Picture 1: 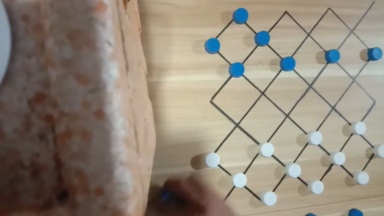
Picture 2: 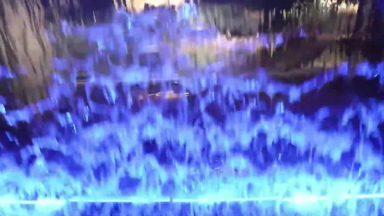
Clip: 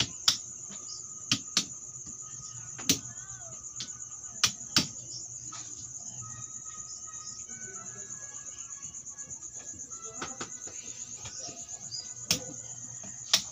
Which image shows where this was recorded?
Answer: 1